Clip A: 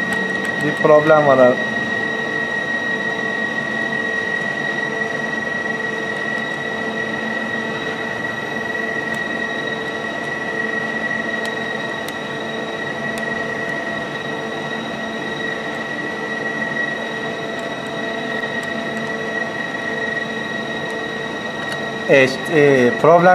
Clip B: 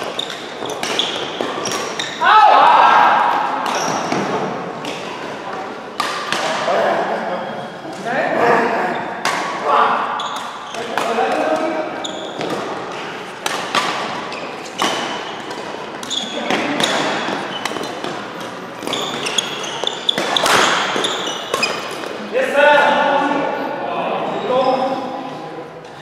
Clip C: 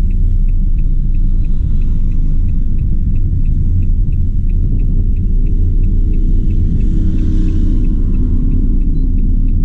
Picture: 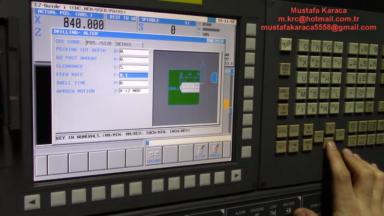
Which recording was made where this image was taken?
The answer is A